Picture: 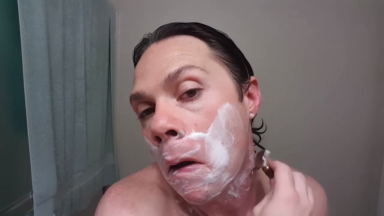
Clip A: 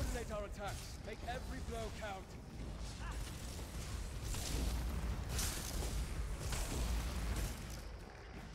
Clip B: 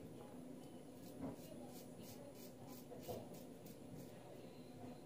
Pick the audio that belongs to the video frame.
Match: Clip B